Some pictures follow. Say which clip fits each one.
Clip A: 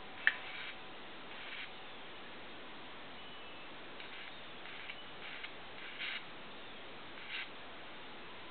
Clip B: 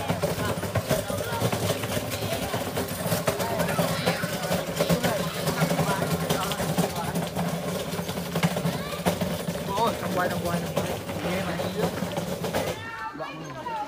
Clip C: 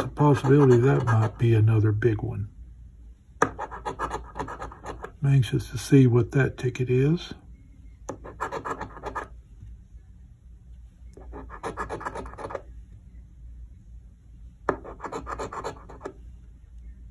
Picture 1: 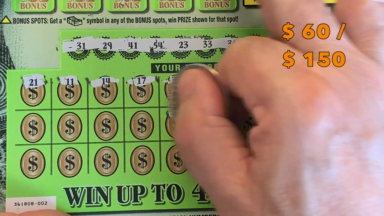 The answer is C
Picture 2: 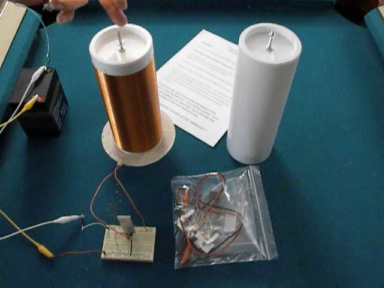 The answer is A